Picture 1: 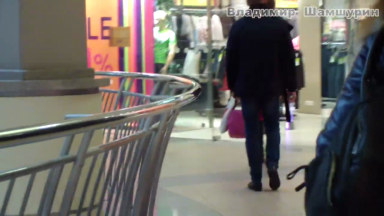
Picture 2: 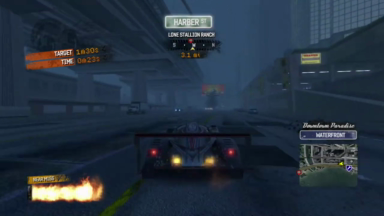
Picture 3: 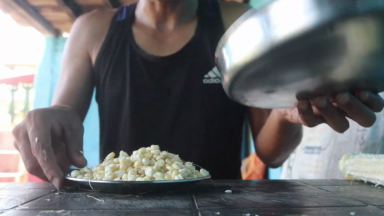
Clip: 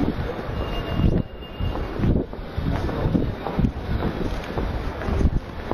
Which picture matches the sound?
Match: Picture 1